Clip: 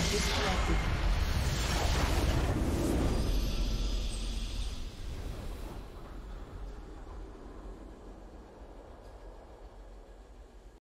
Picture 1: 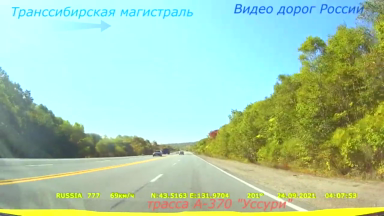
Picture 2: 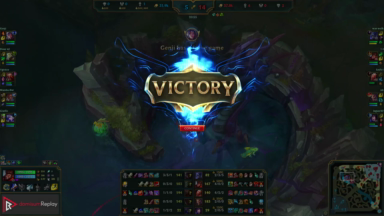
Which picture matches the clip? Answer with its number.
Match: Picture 2